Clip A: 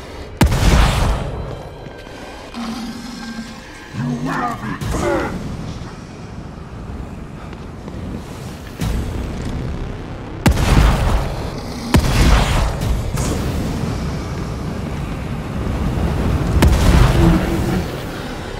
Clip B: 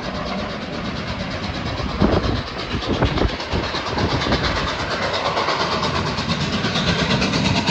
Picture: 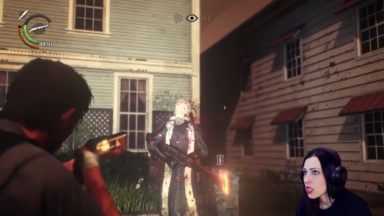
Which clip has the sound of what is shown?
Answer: A